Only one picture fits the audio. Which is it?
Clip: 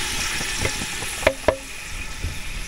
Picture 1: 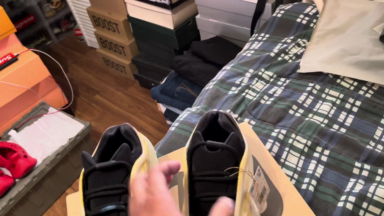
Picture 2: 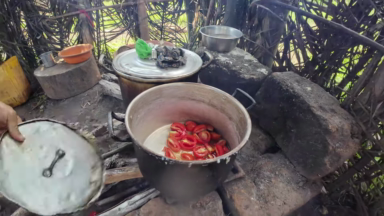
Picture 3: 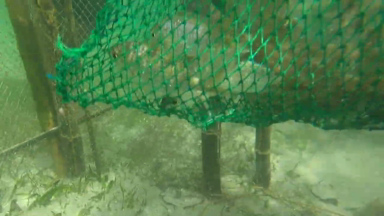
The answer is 2